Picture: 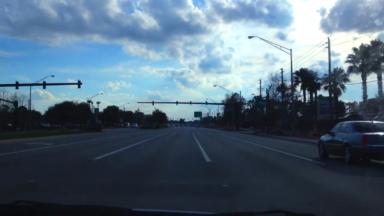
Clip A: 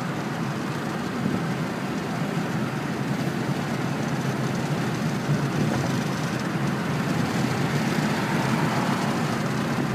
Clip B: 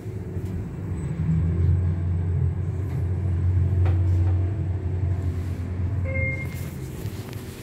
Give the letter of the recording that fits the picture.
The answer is A